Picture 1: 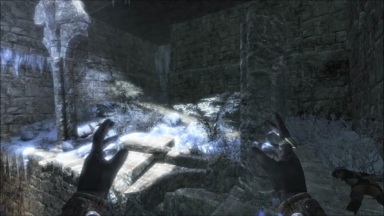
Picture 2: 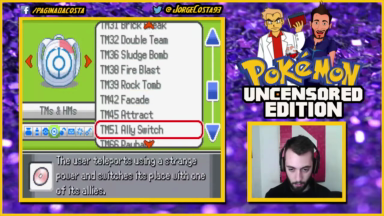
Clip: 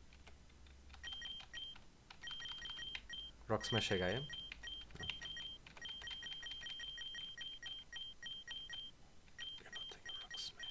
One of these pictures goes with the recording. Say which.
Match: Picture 2